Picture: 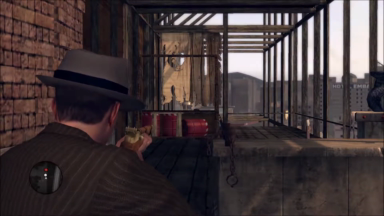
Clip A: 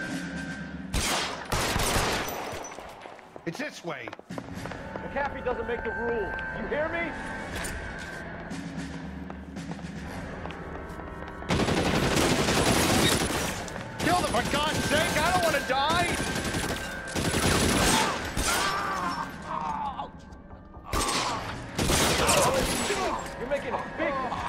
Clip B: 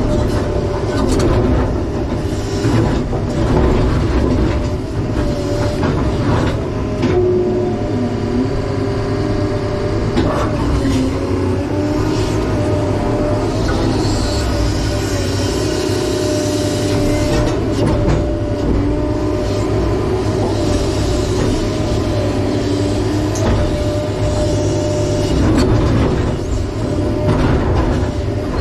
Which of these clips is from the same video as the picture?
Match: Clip A